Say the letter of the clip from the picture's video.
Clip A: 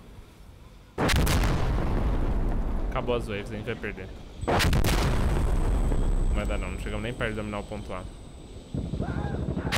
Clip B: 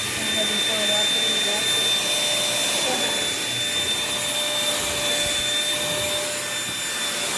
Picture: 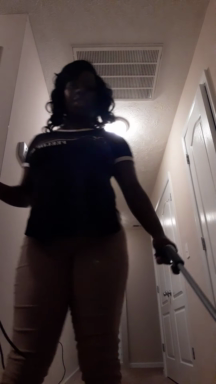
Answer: B